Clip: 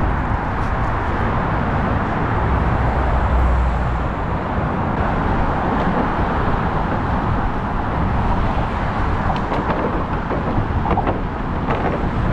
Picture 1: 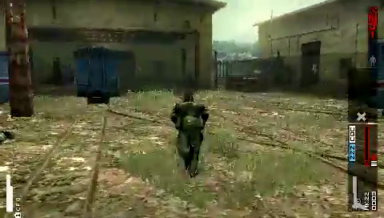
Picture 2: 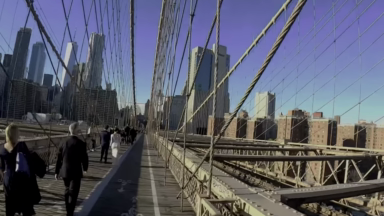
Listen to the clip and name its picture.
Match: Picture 2